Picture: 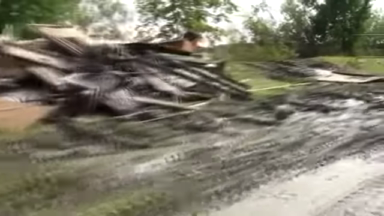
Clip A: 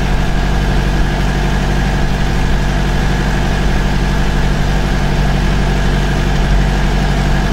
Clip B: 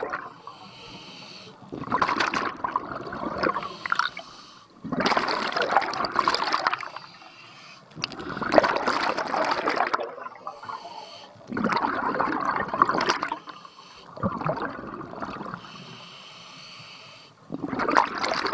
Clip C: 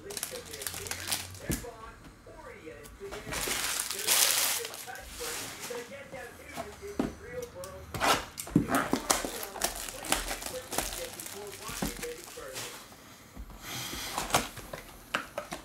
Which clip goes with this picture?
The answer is A